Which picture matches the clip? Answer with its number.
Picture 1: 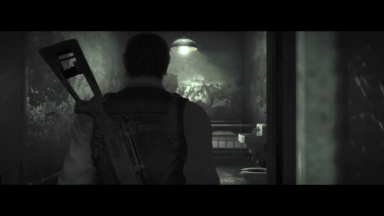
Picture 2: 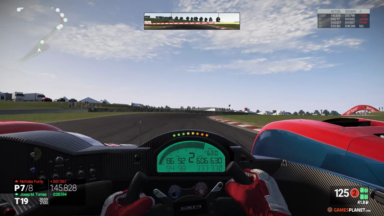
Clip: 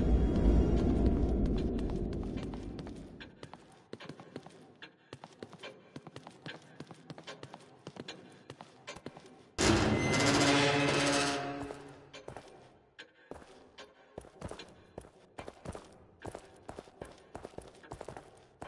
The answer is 1